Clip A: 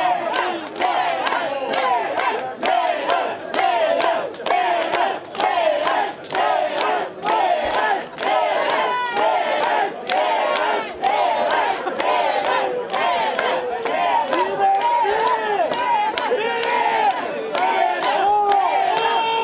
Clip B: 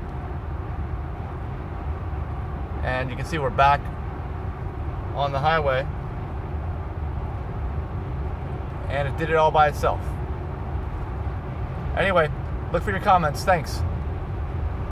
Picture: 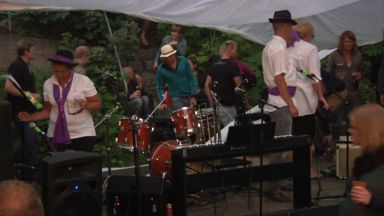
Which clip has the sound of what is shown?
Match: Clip A